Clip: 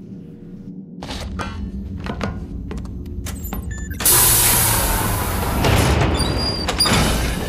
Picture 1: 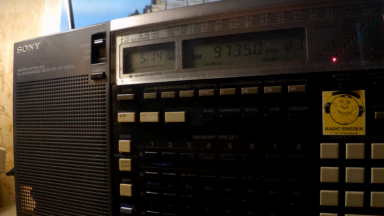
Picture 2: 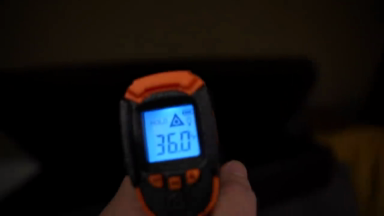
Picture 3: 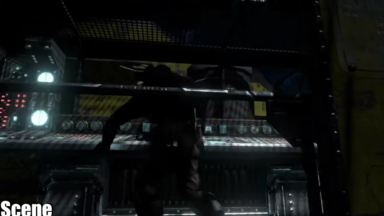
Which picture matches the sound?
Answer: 3